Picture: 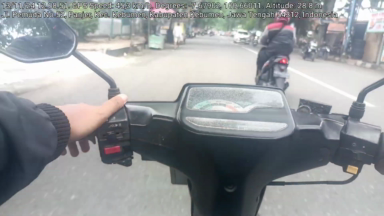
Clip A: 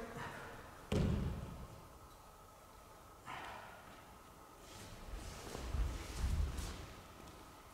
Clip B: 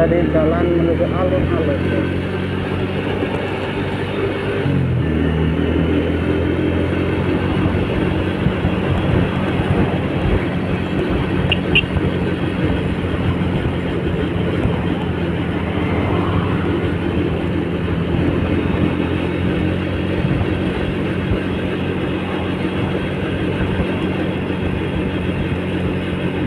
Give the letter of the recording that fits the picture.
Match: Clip B